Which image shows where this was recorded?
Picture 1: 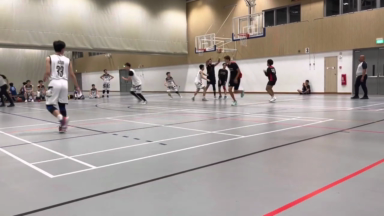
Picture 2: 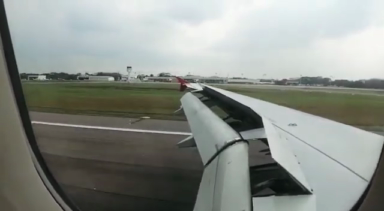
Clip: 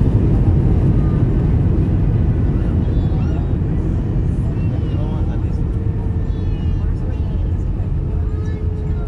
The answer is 2